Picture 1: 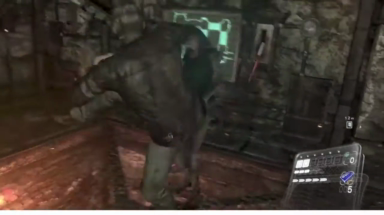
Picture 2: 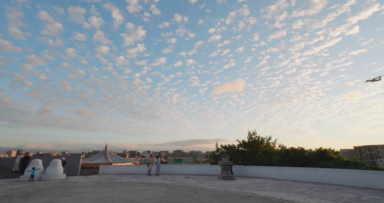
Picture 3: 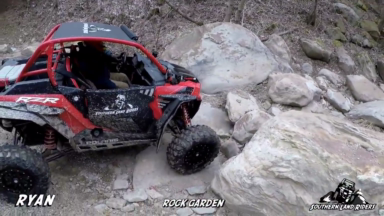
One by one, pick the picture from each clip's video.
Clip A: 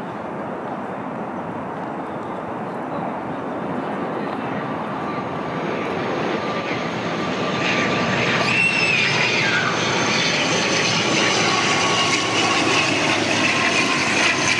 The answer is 2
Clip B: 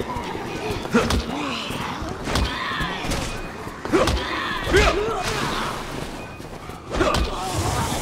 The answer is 1